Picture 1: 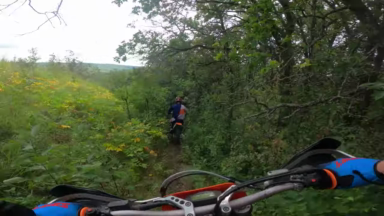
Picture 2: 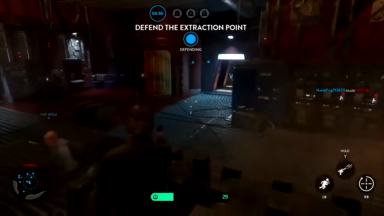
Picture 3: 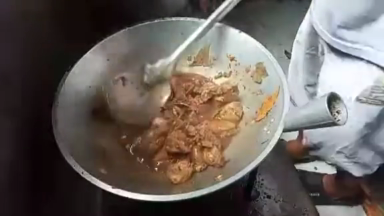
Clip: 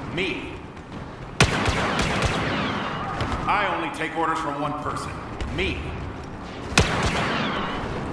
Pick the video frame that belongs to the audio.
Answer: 2